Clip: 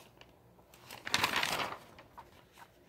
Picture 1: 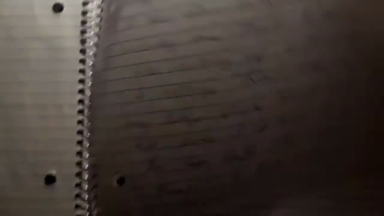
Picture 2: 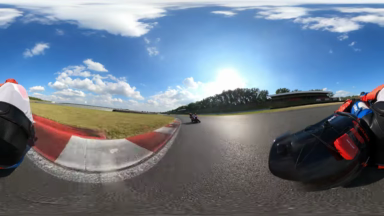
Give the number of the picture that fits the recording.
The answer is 1